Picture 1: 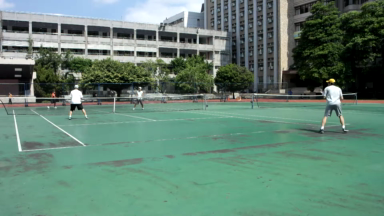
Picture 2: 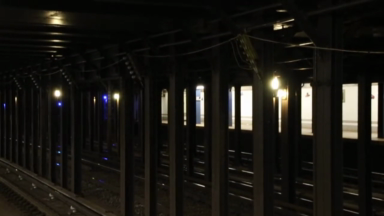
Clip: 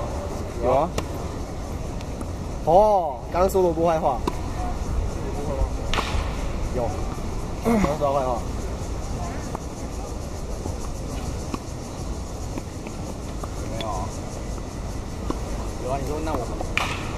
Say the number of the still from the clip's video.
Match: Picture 1